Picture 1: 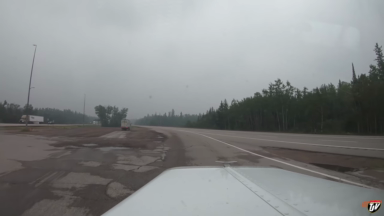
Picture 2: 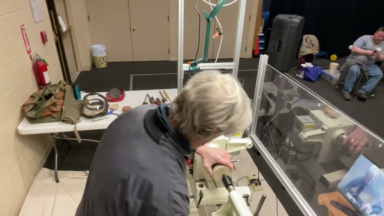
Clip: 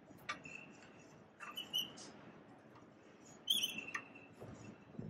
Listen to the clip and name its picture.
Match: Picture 2